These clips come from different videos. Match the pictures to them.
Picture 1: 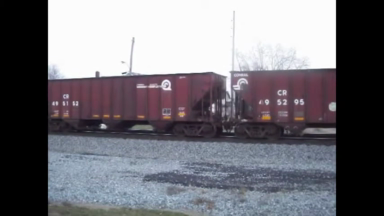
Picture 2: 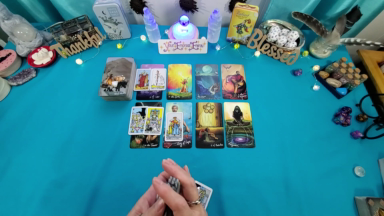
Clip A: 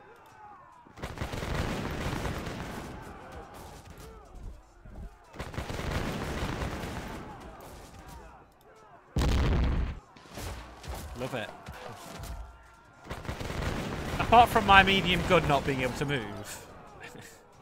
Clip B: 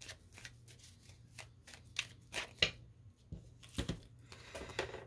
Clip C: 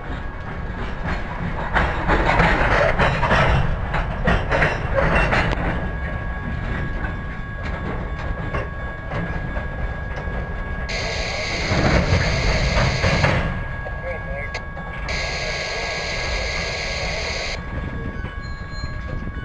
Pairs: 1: C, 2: B